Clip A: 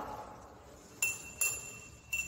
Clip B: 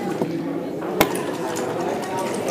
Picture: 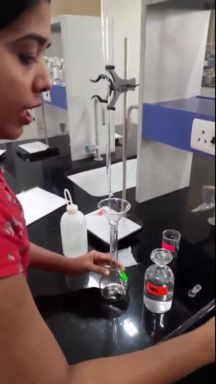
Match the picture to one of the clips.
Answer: A